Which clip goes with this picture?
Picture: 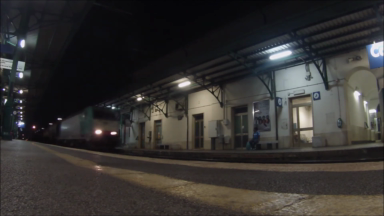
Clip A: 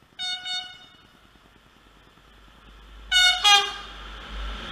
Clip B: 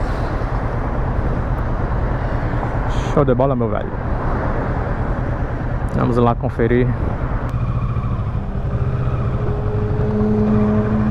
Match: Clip A